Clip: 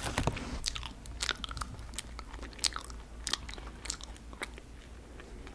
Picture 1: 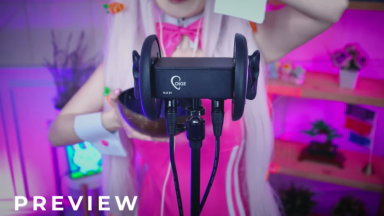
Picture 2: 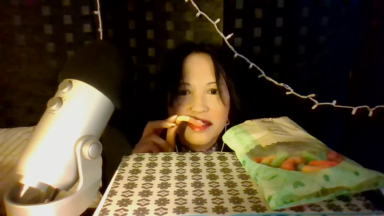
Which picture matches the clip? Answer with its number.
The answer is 2